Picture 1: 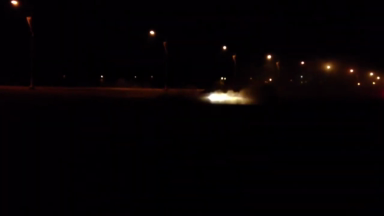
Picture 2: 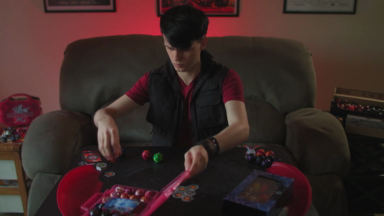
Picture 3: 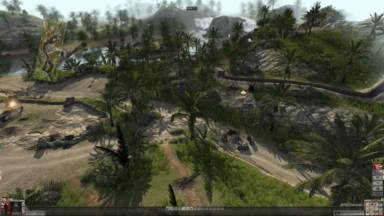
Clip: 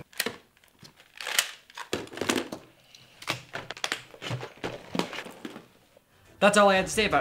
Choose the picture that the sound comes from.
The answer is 2